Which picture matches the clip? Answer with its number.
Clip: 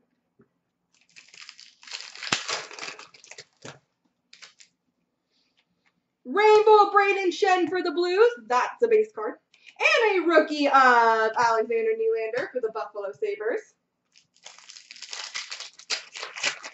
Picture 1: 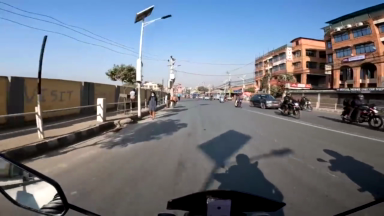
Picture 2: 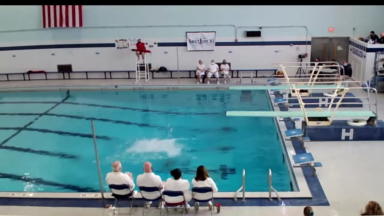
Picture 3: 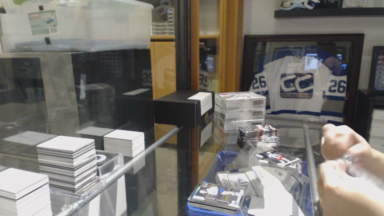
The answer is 3